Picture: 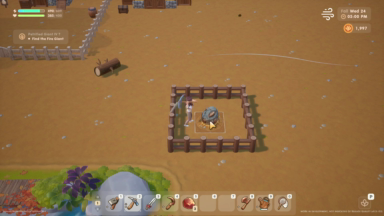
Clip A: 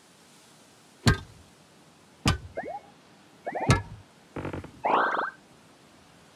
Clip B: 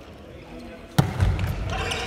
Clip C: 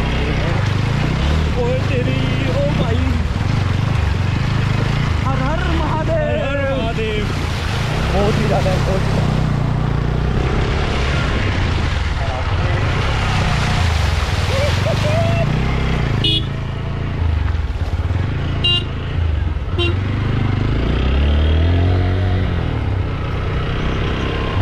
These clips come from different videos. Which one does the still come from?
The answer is A